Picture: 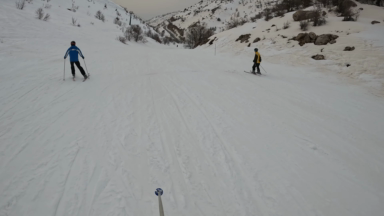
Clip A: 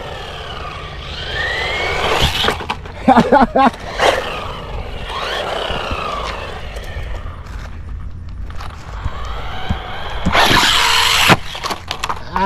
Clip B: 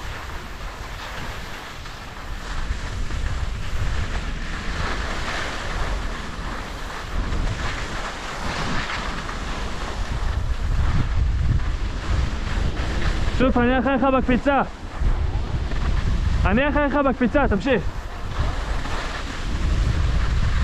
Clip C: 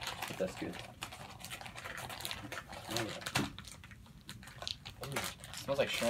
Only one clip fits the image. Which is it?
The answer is B